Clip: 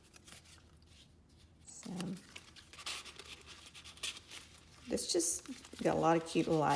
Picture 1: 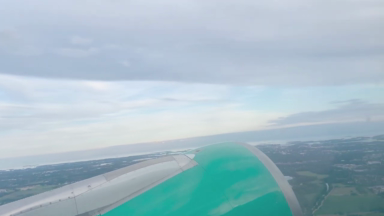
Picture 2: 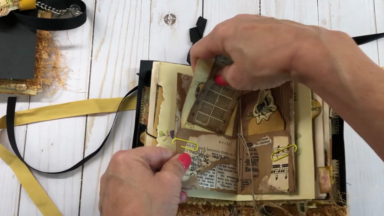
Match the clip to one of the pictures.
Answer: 2